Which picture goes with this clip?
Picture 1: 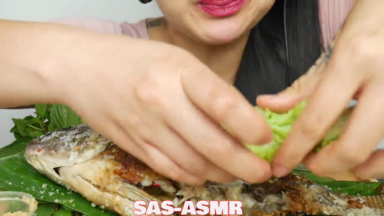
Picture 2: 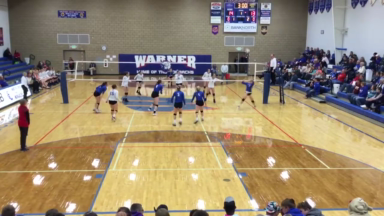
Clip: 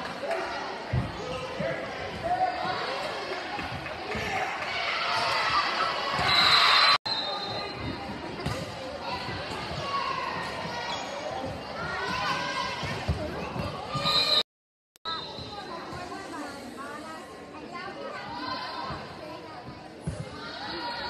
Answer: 2